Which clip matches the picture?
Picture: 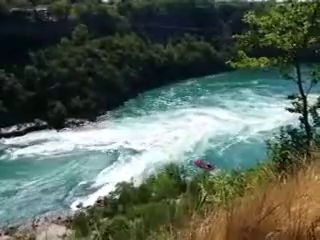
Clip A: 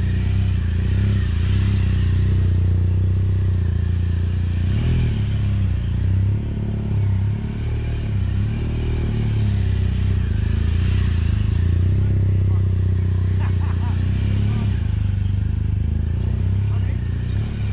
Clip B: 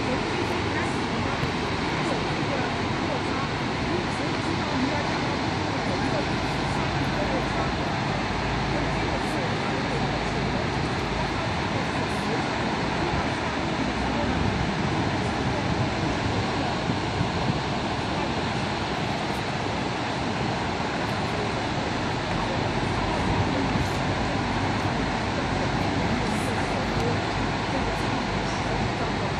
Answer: B